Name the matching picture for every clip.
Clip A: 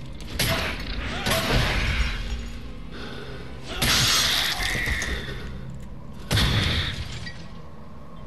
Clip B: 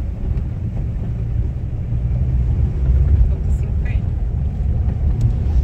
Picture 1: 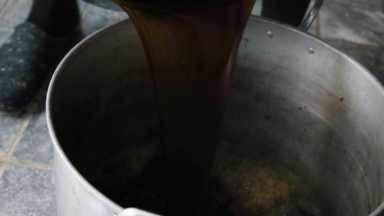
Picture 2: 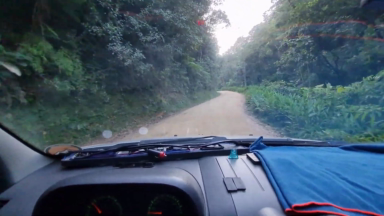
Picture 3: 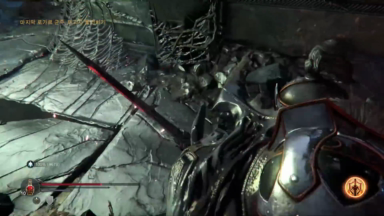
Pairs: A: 3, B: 2